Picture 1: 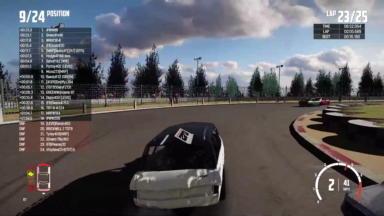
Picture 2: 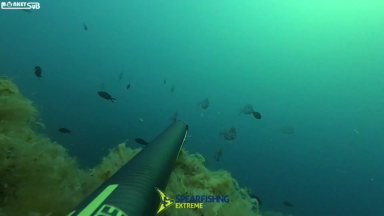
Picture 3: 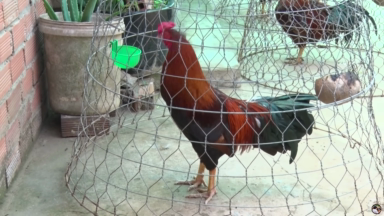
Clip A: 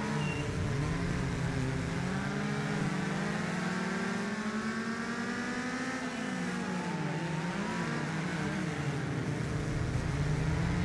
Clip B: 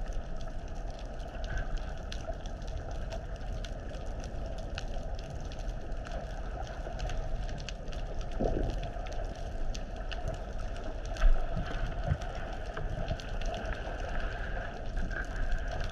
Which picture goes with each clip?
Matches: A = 1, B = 2